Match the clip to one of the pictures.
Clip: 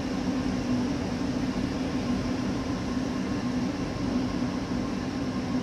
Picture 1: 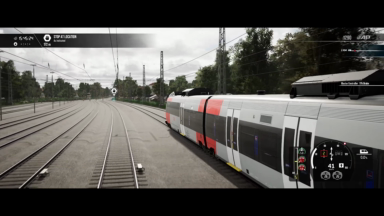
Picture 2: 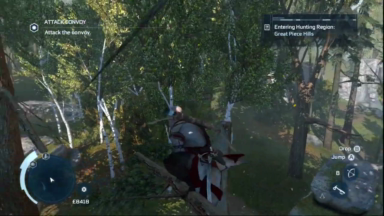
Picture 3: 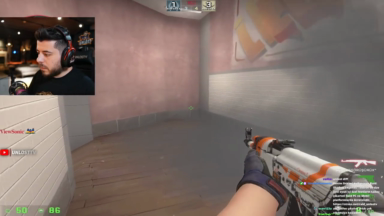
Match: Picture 1